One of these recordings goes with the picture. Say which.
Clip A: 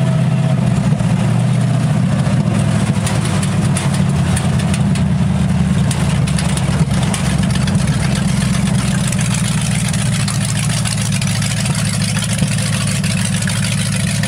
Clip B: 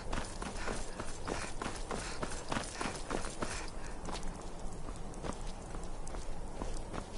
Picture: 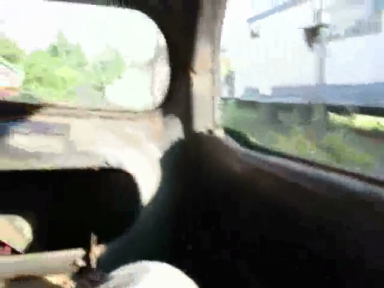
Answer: A